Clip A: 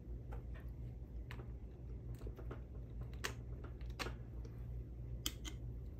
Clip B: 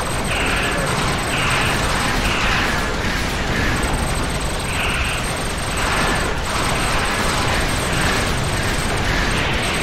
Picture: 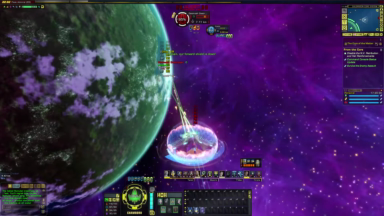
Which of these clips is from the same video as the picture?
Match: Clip B